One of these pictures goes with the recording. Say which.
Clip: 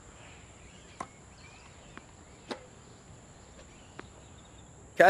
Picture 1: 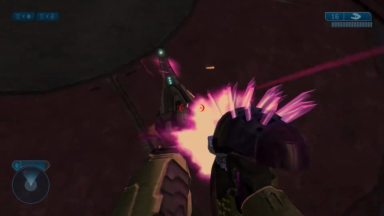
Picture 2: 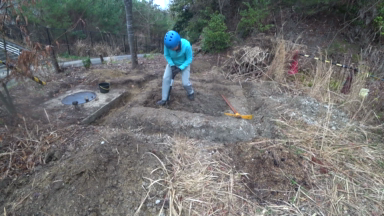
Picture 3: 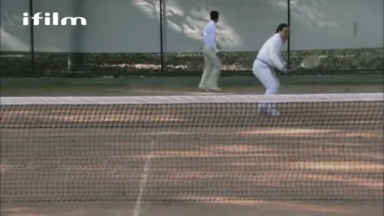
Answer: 3